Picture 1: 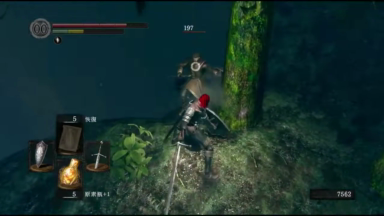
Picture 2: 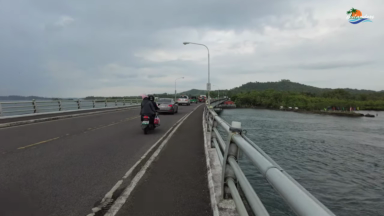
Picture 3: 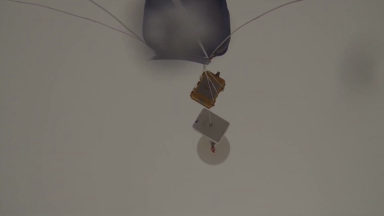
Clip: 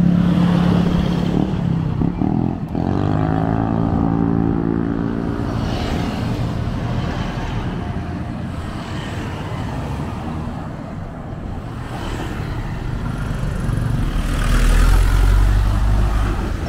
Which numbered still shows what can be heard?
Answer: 2